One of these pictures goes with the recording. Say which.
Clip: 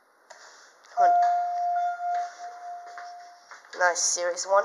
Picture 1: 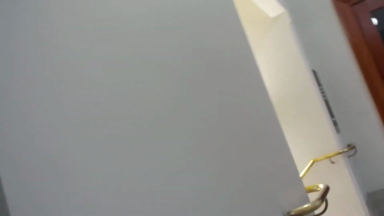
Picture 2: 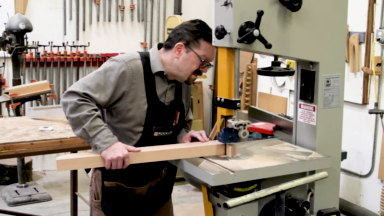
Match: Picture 1